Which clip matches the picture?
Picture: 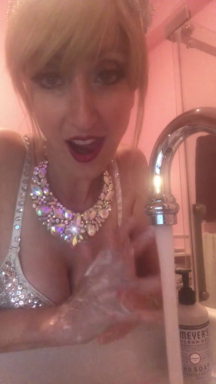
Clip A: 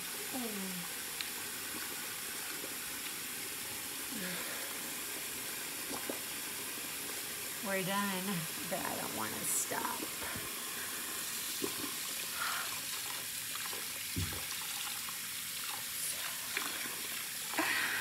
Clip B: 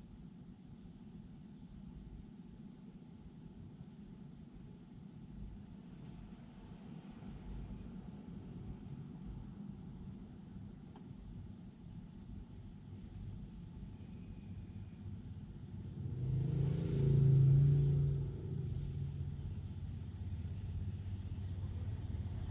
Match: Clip A